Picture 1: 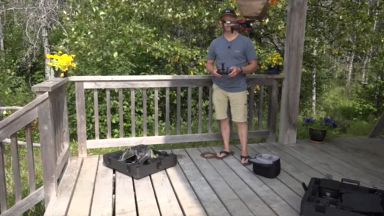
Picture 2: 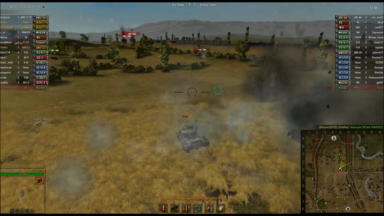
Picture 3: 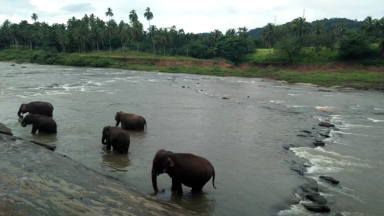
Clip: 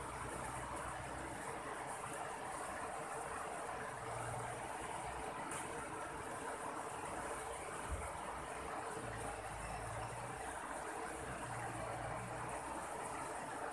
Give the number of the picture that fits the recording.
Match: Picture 3